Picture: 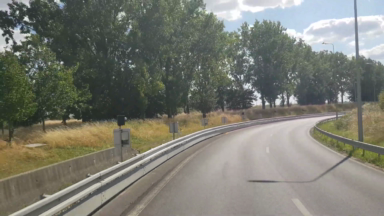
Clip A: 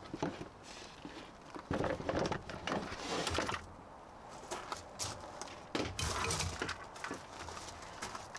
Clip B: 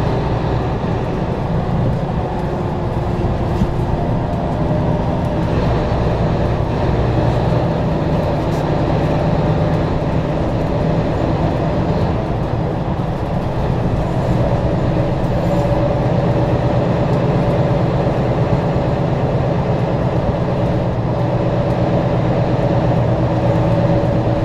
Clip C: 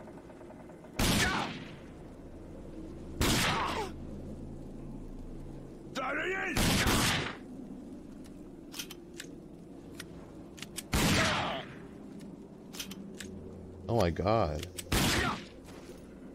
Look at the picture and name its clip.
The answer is B